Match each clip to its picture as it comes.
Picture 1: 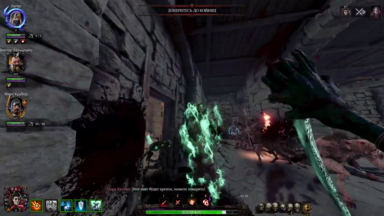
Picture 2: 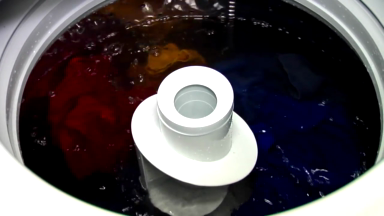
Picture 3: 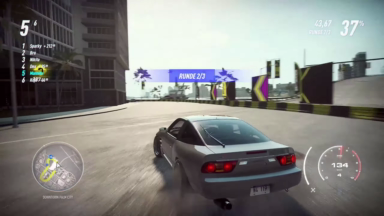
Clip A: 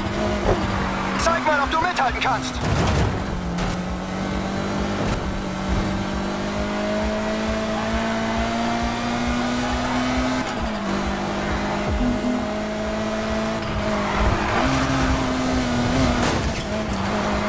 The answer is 3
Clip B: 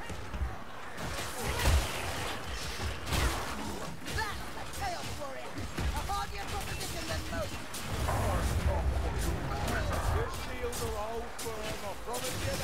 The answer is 1